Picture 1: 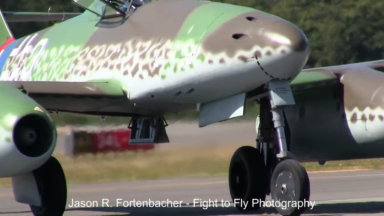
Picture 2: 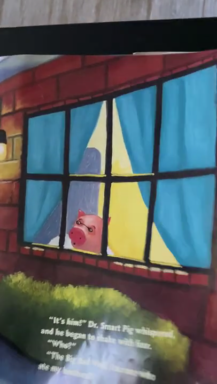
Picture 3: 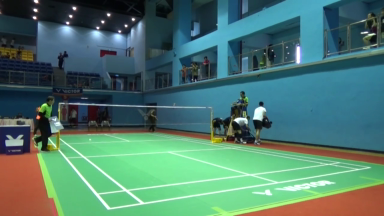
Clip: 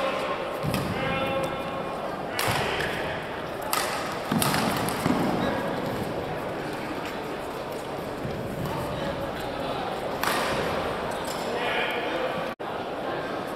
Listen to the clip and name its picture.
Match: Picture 3